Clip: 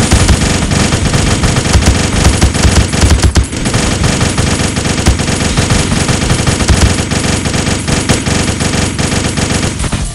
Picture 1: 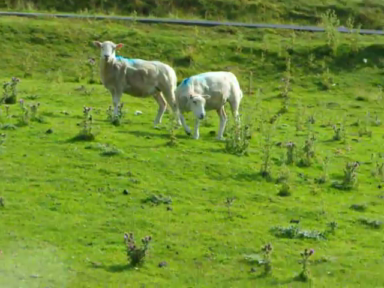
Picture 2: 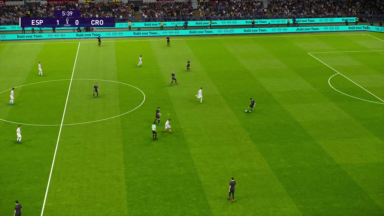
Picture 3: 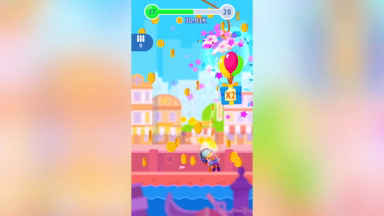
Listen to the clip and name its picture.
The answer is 3